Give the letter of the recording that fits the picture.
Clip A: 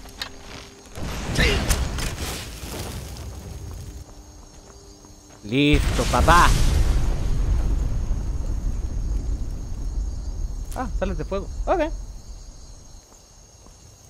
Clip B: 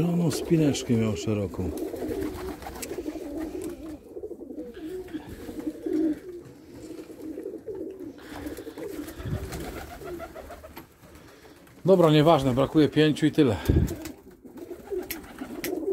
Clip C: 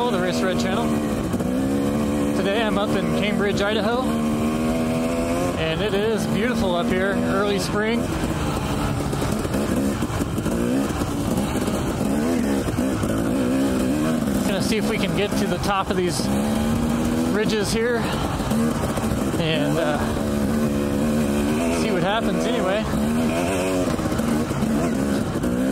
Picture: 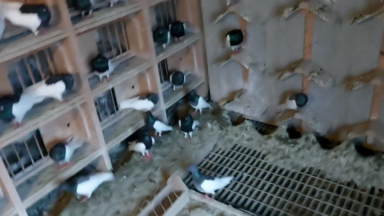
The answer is B